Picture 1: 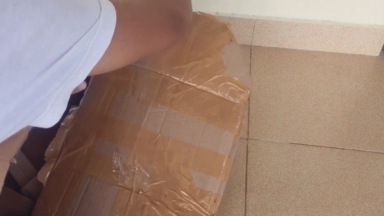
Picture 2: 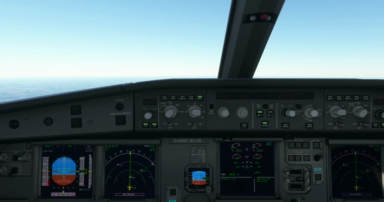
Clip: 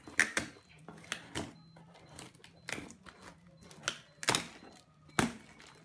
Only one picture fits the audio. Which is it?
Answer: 1